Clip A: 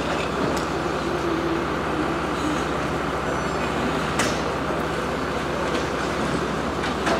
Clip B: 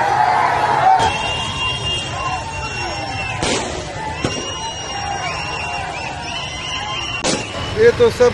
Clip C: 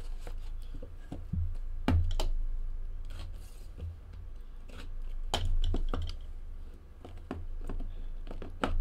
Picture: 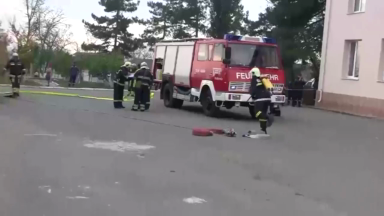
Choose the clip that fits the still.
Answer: A